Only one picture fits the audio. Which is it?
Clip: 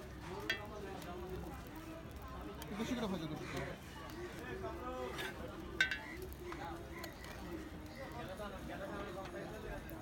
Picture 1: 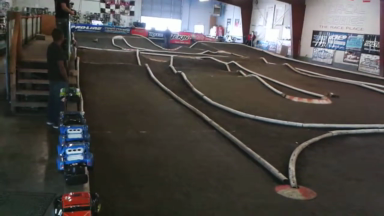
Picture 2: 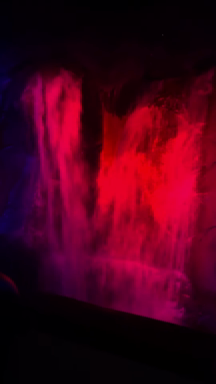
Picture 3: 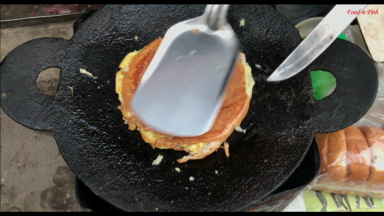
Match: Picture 3